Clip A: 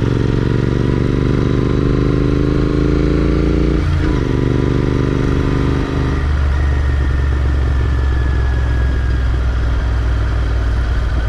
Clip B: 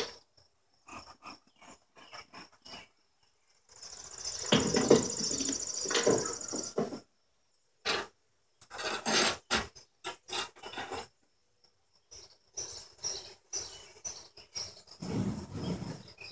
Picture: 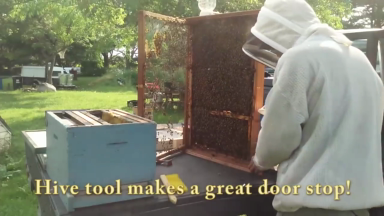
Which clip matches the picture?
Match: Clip B